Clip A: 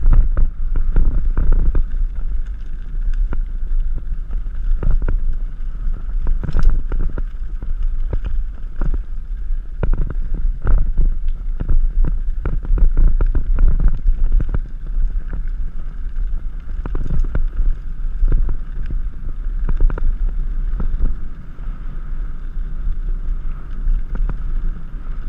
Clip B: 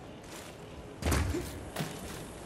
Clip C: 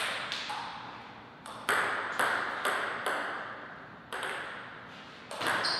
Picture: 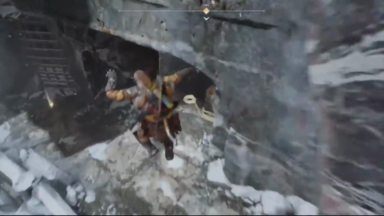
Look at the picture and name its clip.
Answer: B